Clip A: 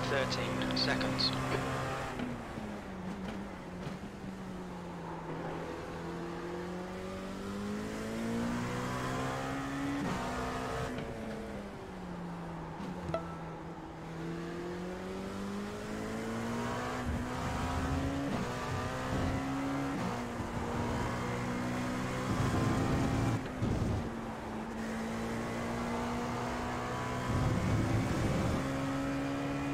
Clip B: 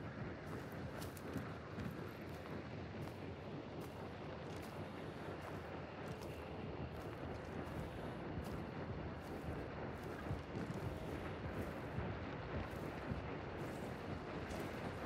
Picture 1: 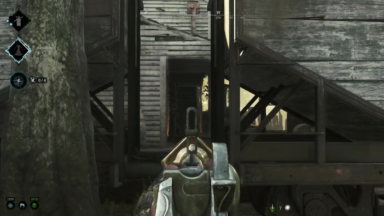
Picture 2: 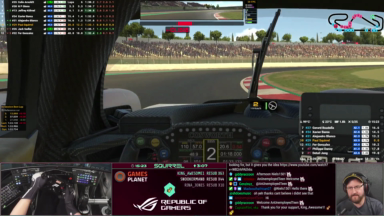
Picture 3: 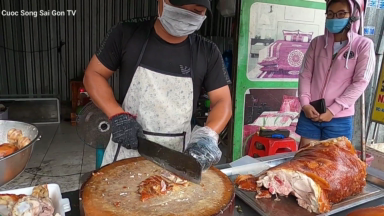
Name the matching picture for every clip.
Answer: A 2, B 1